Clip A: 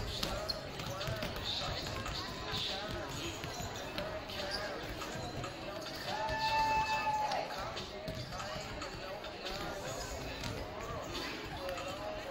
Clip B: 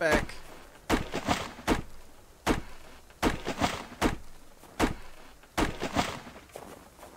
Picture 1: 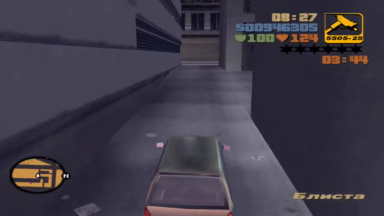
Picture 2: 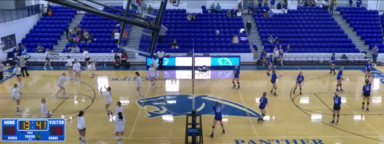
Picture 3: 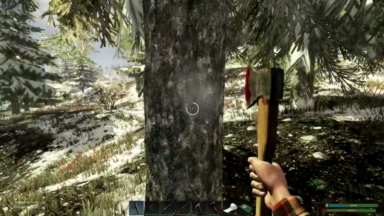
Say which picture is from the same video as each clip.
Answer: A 2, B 3